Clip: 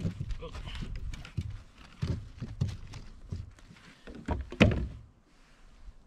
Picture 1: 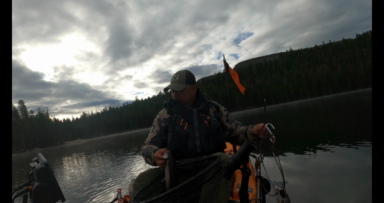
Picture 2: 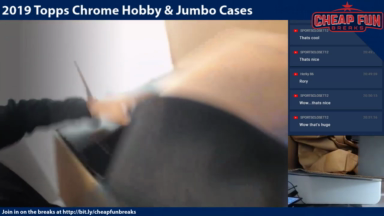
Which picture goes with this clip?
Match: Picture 1